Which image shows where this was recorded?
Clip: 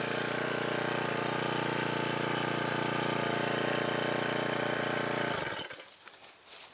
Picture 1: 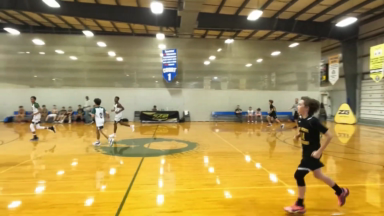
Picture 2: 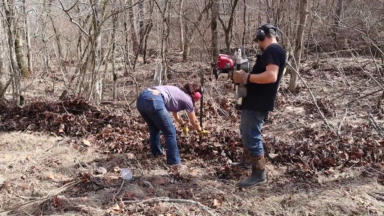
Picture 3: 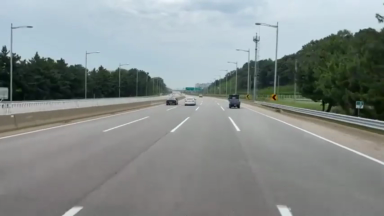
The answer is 2